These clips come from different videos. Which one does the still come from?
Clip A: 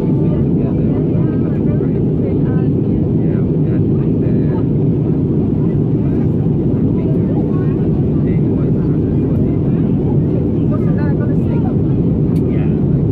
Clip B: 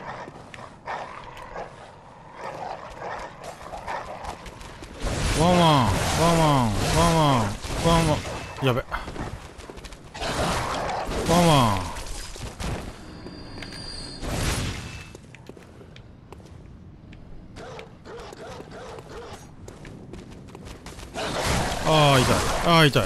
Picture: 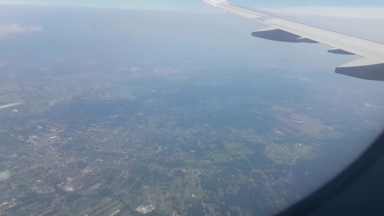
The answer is A